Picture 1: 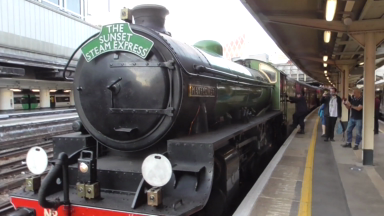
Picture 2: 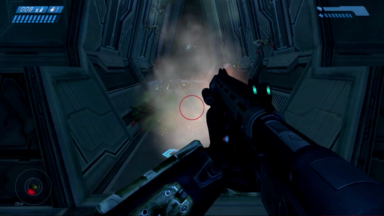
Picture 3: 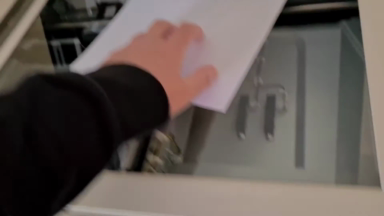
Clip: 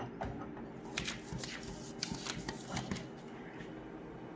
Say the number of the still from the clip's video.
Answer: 3